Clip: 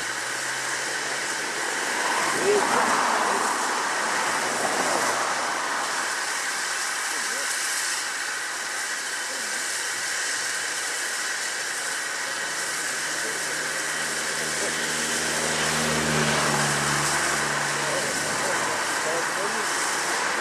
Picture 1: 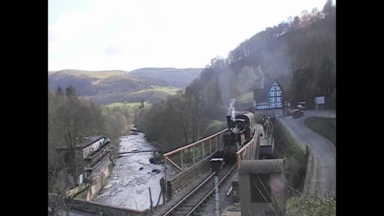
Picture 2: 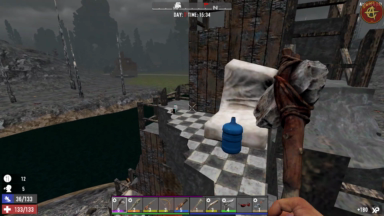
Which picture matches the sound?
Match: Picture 1